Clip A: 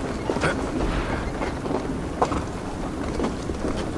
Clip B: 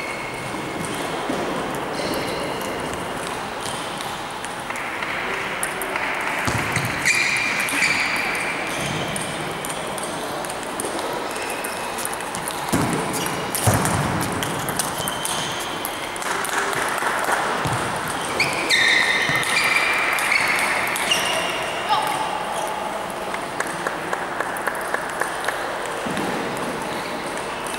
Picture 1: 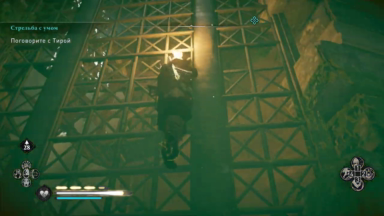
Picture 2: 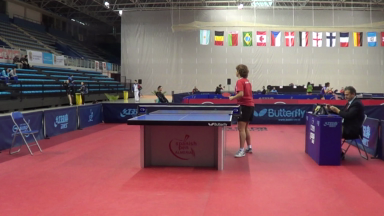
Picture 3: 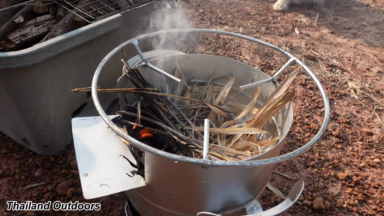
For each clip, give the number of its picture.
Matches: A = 1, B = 2